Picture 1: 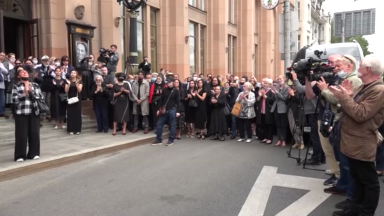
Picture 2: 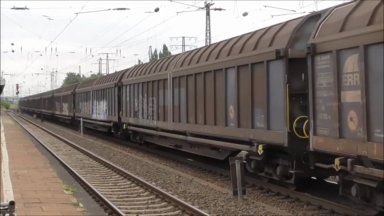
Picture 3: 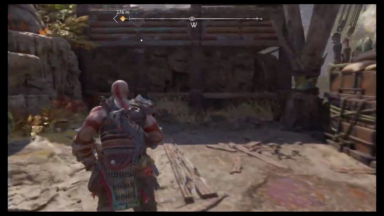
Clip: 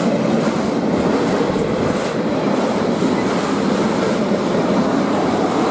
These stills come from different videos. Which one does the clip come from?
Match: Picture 2